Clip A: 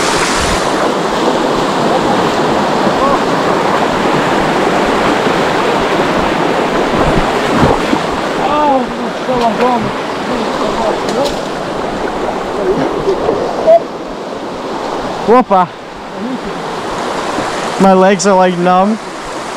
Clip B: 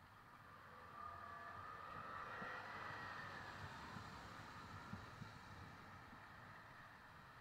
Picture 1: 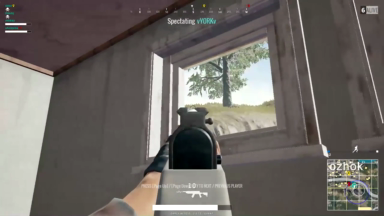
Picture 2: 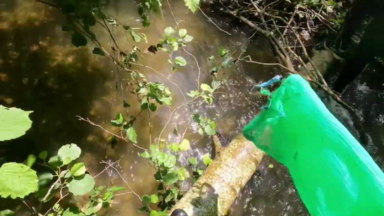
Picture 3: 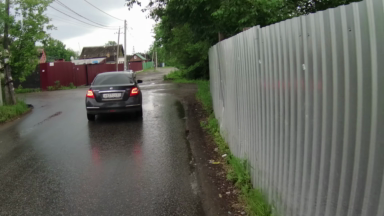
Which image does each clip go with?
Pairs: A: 2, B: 3